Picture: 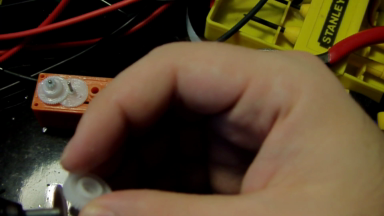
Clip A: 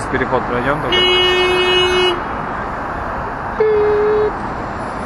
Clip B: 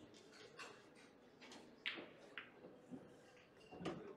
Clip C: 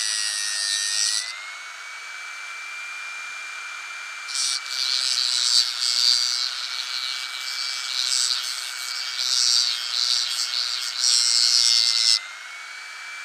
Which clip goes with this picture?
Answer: C